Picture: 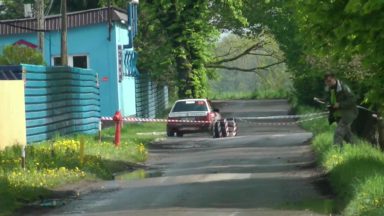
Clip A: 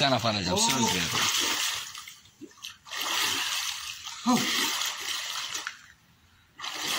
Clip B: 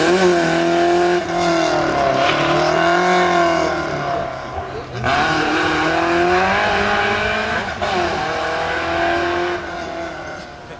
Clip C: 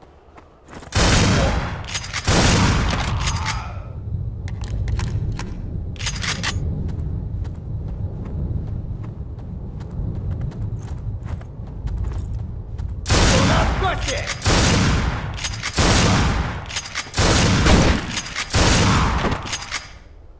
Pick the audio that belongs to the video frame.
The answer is B